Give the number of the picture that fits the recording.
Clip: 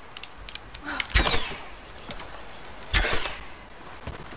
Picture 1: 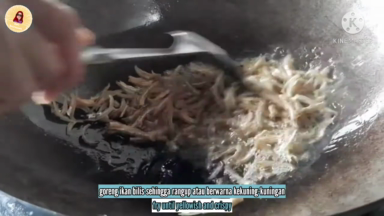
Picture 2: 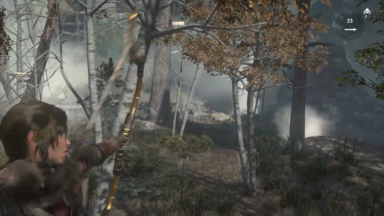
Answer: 2